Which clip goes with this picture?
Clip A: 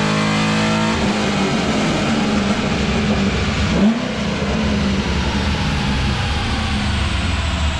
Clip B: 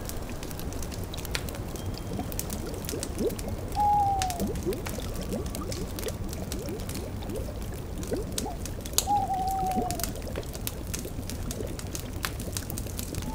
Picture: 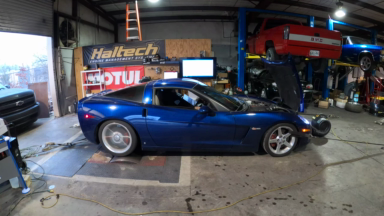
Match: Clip A